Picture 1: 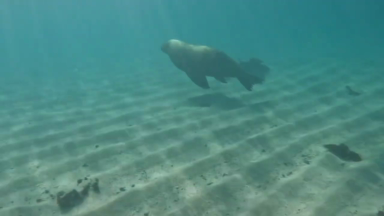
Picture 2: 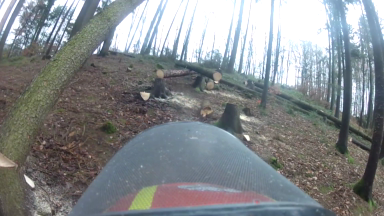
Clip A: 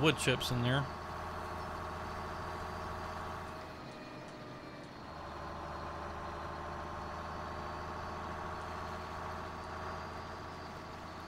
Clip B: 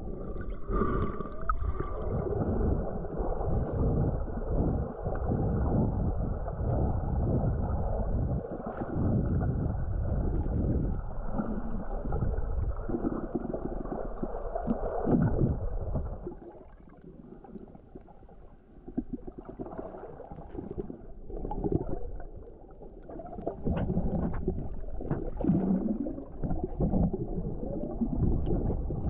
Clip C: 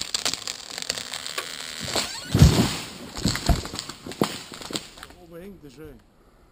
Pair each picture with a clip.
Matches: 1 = B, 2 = C